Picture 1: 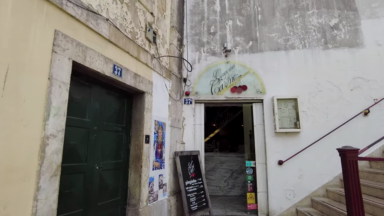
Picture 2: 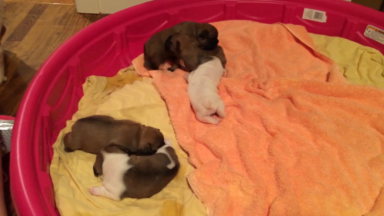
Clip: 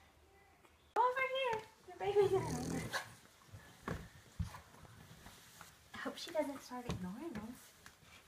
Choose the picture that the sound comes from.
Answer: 2